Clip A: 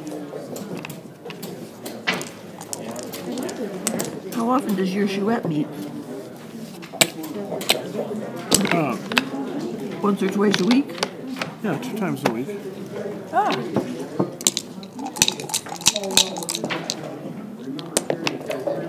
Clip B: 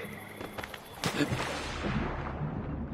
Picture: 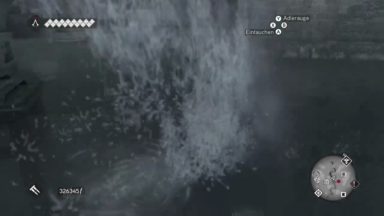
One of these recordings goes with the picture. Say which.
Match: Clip B